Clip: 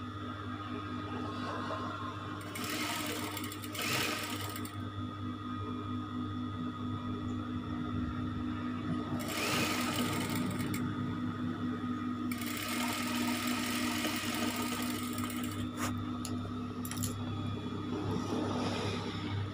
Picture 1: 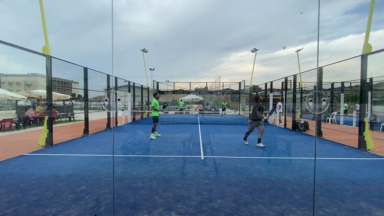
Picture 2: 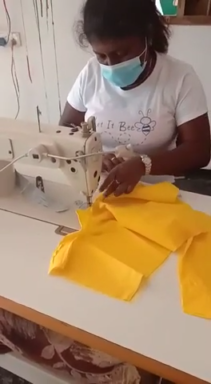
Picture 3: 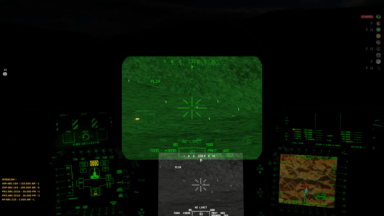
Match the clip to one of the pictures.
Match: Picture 2